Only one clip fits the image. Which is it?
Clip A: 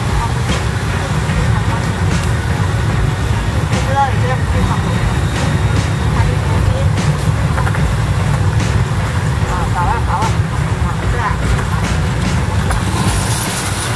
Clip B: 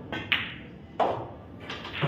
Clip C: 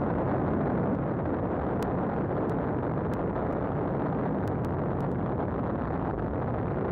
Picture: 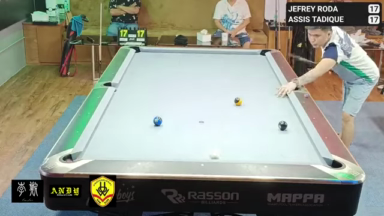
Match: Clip B